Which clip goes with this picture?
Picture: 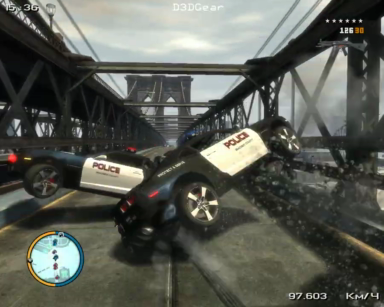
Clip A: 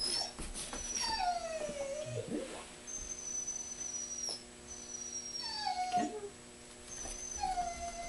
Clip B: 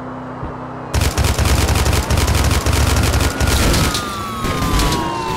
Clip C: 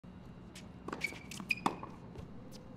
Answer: B